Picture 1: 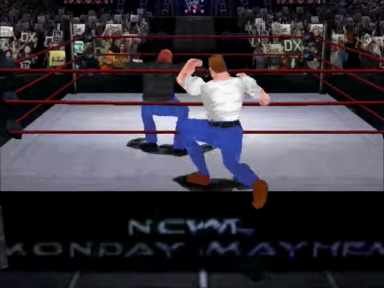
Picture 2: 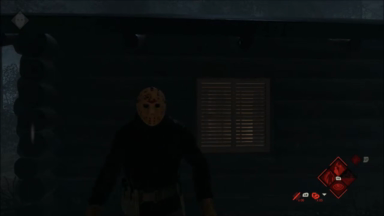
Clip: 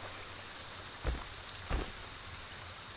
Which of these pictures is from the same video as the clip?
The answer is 2